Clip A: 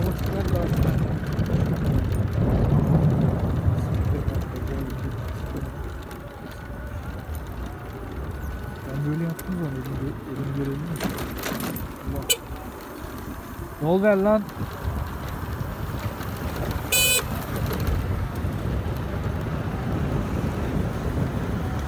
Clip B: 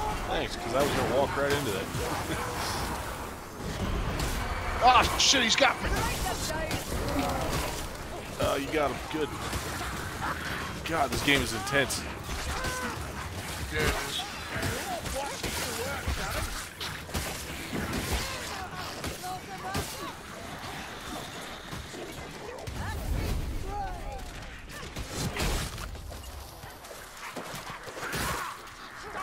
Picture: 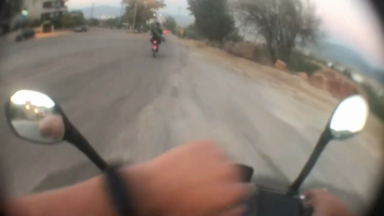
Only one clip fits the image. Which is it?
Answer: A